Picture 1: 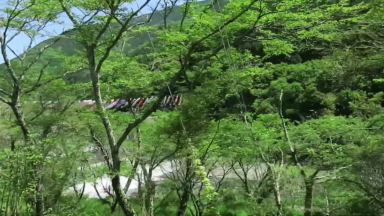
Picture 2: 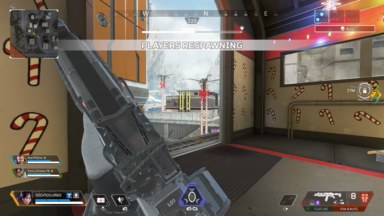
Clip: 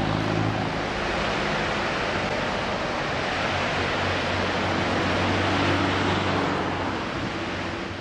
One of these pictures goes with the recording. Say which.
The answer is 1